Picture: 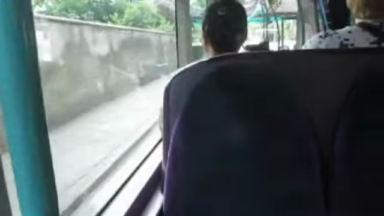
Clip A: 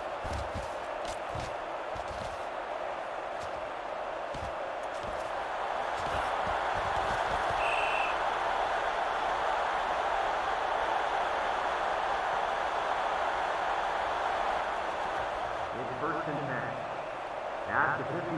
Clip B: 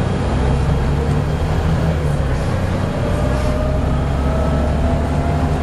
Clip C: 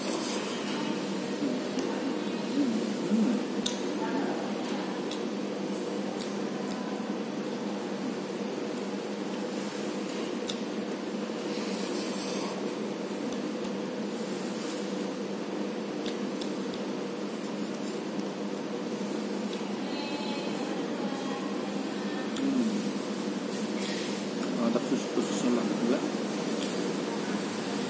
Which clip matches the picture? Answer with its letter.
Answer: B